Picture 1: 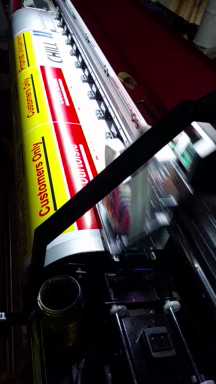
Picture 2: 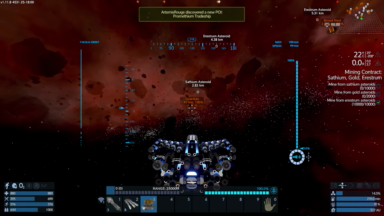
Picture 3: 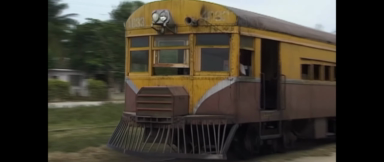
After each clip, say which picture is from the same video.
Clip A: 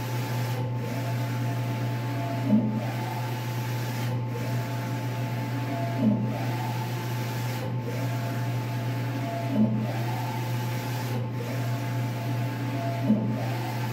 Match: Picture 1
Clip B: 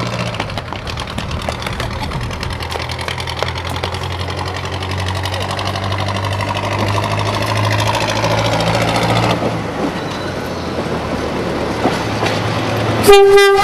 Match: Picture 3